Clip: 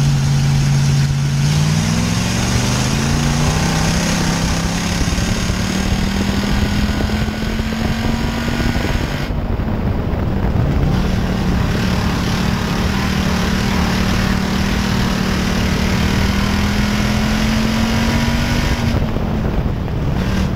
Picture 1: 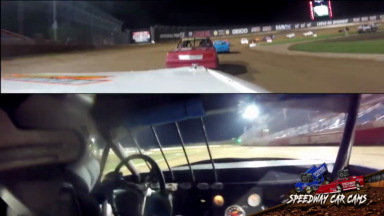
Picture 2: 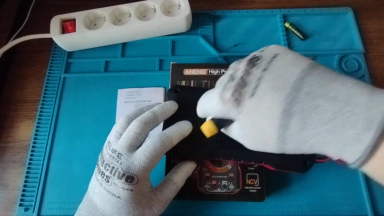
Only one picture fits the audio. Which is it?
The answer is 1